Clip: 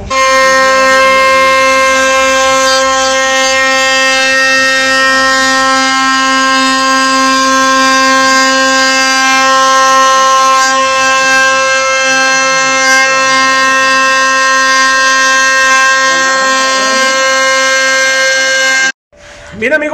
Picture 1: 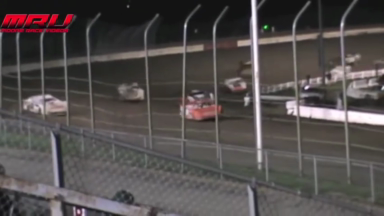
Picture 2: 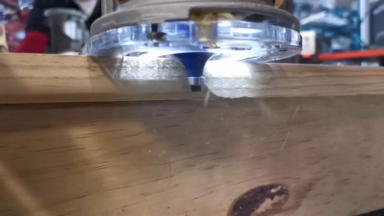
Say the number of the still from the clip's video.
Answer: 2